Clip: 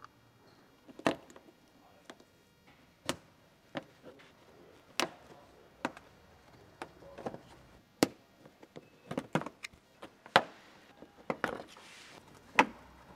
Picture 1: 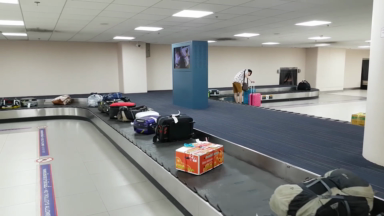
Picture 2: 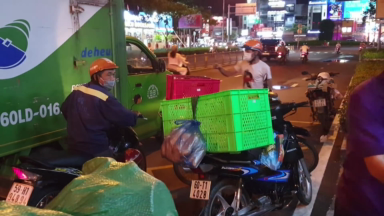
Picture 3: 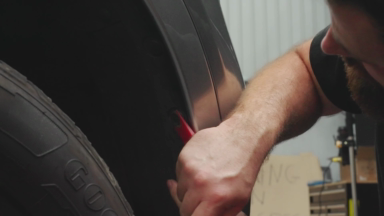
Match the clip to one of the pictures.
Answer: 3